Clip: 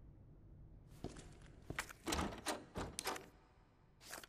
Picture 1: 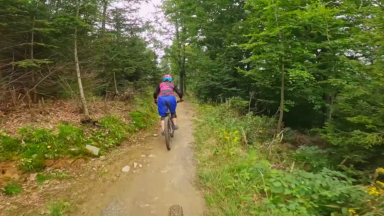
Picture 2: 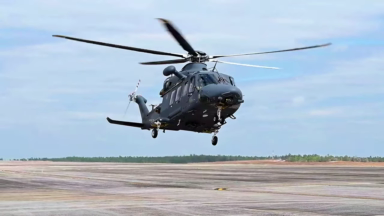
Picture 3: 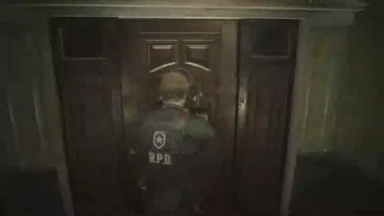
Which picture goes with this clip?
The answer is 3